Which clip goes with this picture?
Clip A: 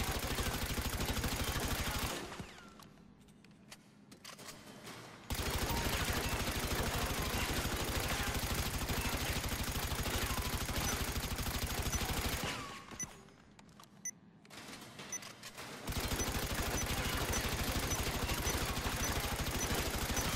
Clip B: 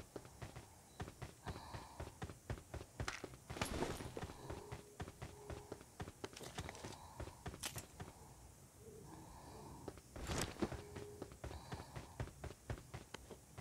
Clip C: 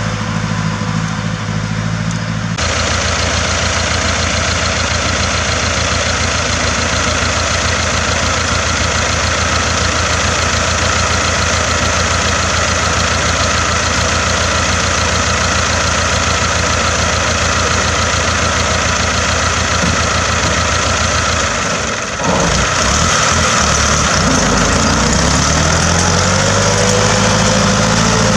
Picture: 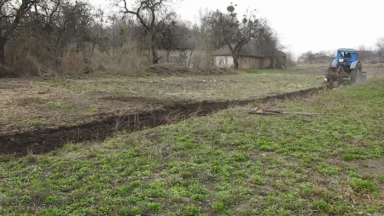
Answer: C